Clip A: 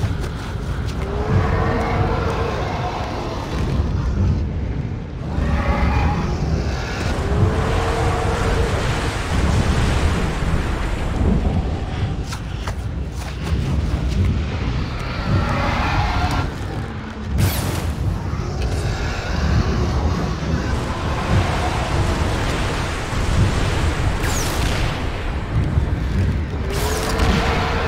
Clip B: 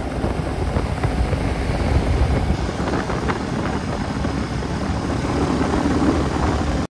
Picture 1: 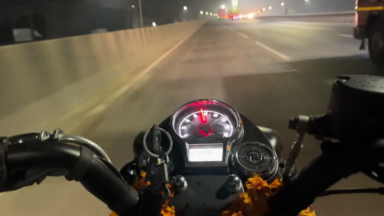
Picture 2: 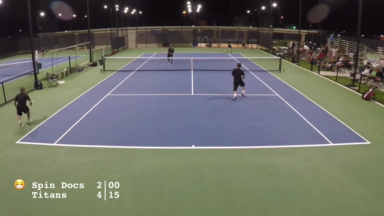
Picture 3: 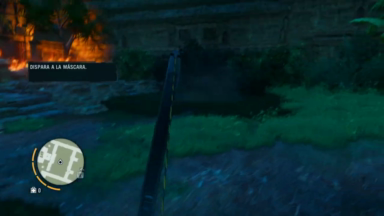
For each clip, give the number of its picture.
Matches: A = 3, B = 1